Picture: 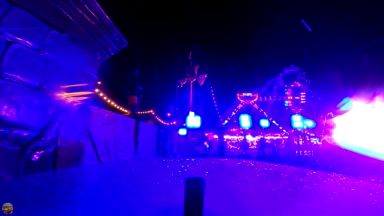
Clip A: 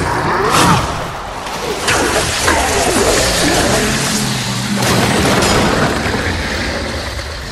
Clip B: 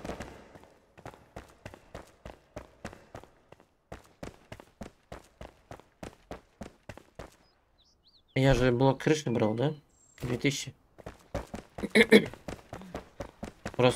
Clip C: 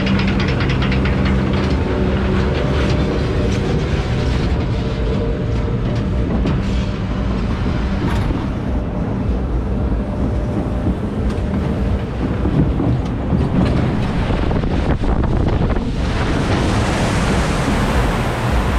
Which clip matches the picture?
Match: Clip C